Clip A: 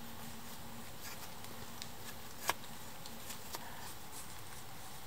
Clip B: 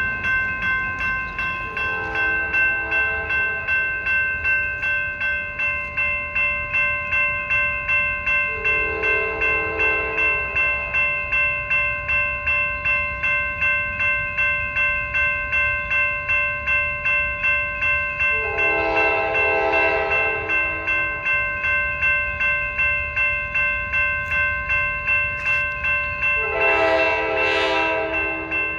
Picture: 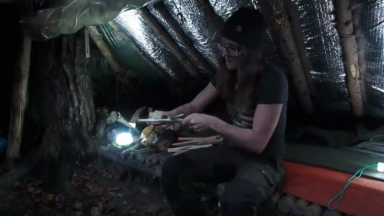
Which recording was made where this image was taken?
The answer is A